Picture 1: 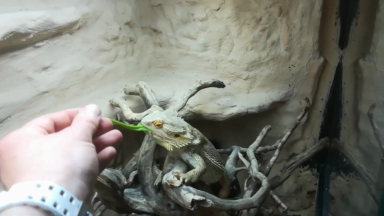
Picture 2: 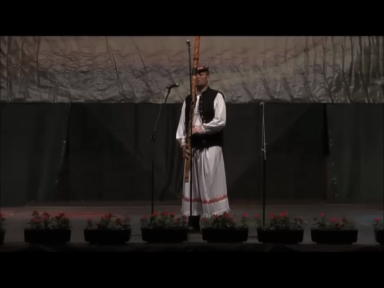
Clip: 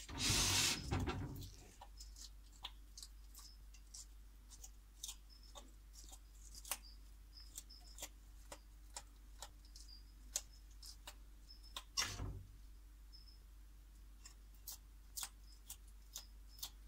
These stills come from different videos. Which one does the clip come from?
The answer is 1